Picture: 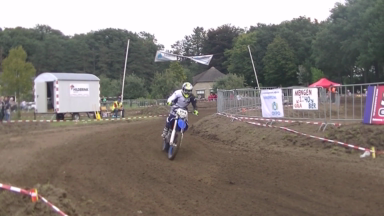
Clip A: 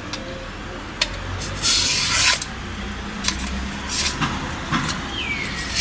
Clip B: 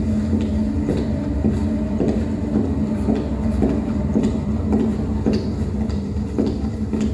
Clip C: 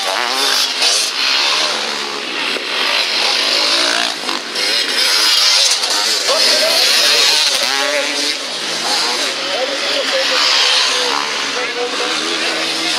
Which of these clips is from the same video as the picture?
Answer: C